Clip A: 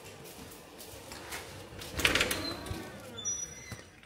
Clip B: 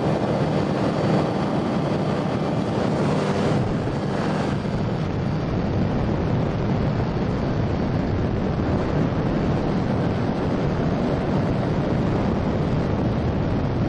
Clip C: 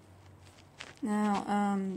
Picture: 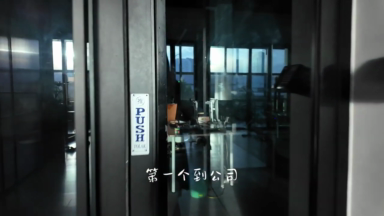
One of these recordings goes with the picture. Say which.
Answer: A